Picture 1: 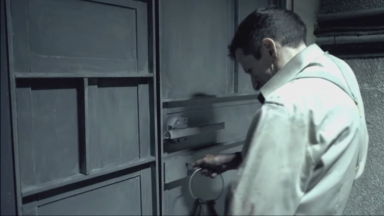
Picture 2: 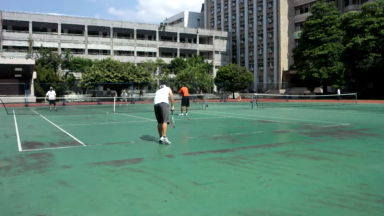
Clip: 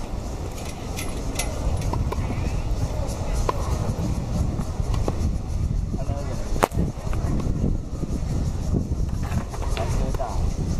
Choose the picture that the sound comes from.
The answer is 2